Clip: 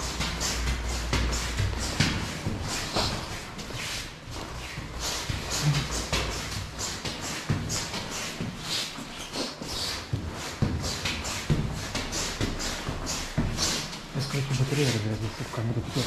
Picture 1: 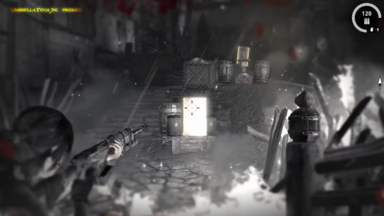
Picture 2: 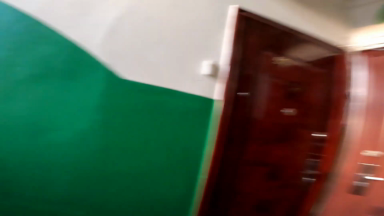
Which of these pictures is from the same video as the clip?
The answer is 2